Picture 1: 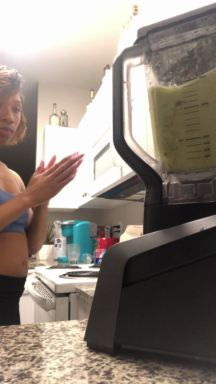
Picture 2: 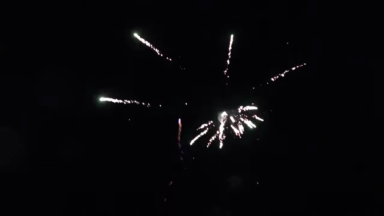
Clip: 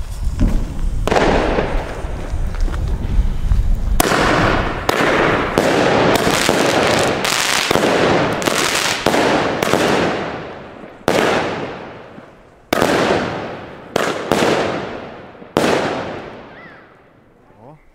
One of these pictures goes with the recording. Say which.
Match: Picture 2